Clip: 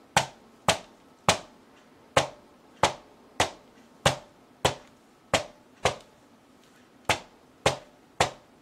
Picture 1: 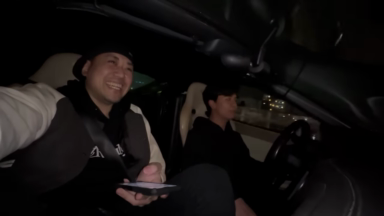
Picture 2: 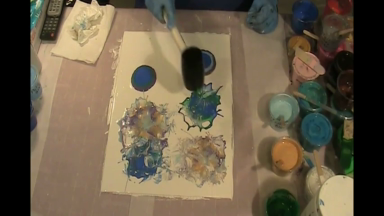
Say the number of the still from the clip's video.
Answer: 2